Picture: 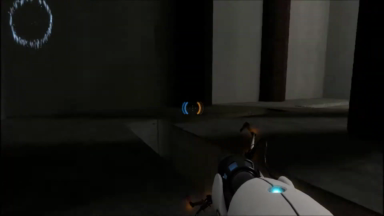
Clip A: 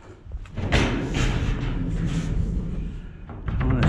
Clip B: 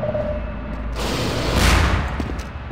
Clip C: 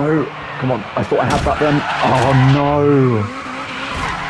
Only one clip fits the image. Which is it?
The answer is B